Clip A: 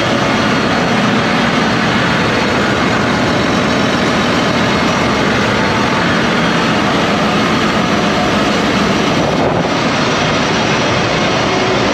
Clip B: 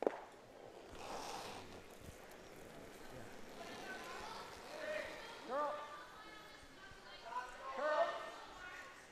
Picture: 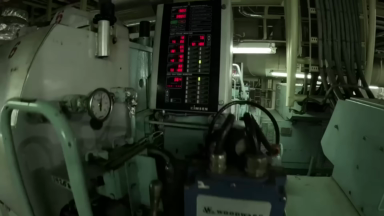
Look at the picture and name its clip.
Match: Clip A